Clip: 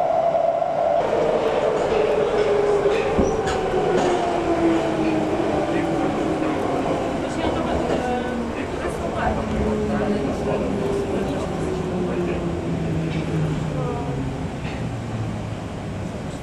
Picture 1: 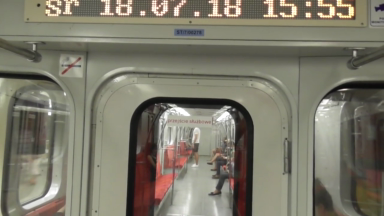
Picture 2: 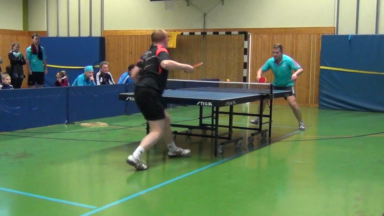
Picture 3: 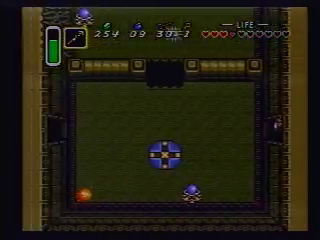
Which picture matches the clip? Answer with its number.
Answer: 1